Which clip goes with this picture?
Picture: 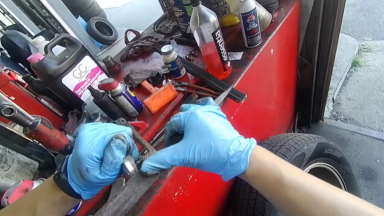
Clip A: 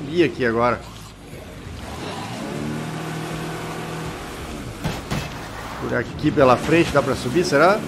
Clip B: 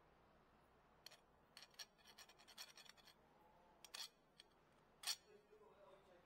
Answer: B